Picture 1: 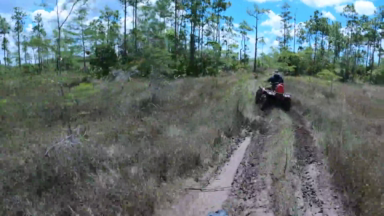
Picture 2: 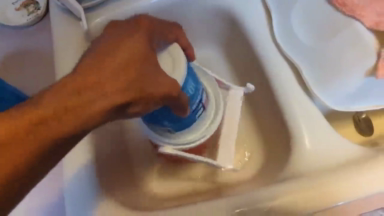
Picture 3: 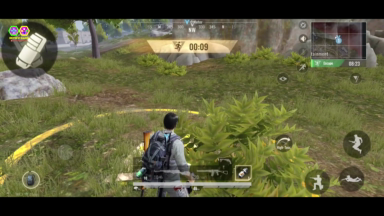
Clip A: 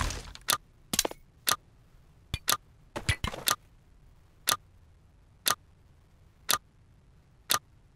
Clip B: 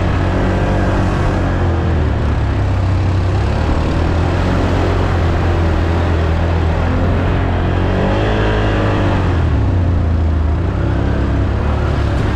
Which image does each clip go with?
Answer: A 3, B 1